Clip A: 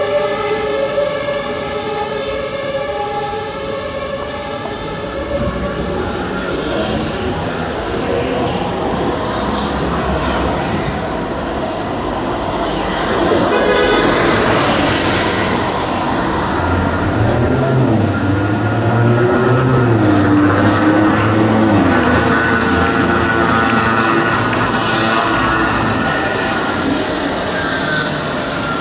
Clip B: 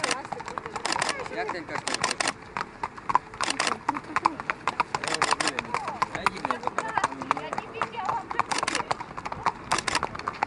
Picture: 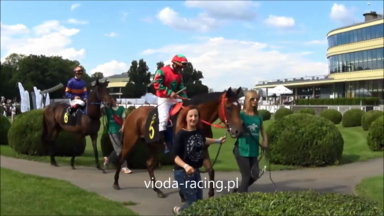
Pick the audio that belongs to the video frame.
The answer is B